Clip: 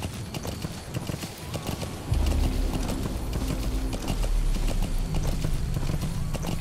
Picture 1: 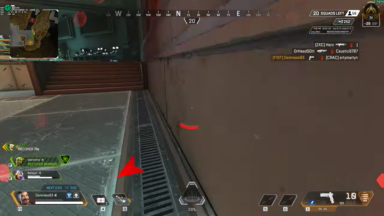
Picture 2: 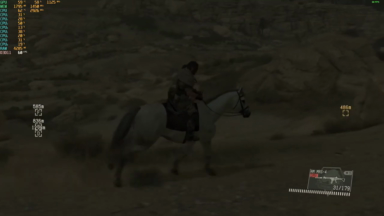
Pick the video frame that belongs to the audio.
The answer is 2